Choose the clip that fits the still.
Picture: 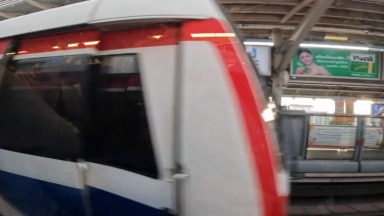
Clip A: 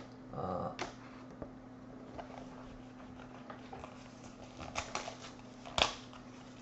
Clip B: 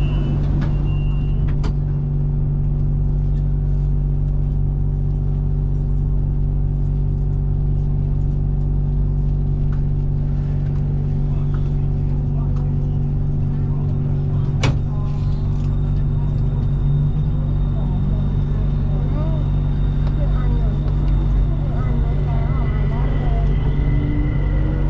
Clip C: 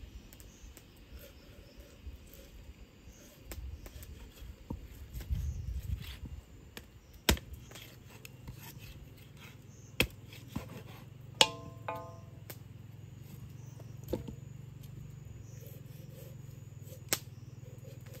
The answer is B